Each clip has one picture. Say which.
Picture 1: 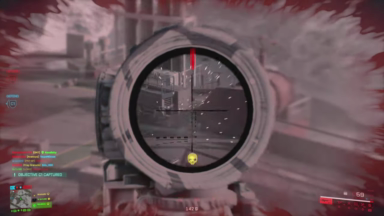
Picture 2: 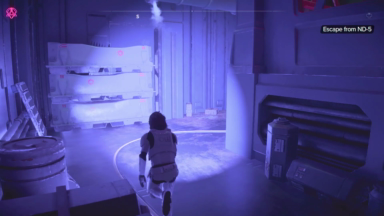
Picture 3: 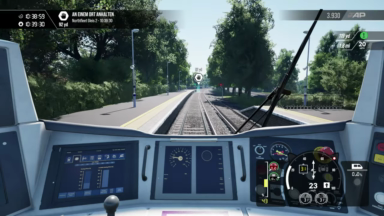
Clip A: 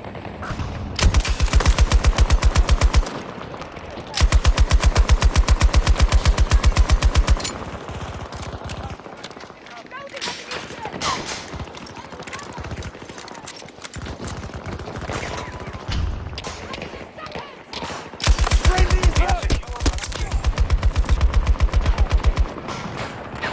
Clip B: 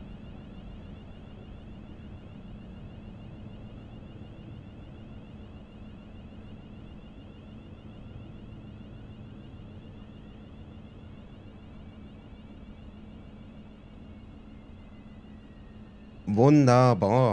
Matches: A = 1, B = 3